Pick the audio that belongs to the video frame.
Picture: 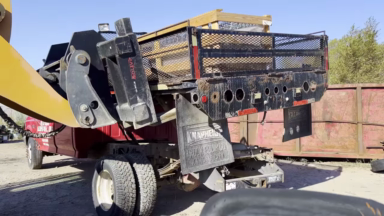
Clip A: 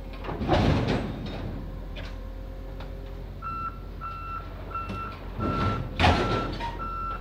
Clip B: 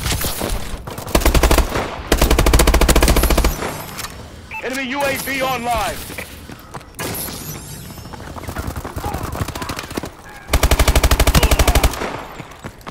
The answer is A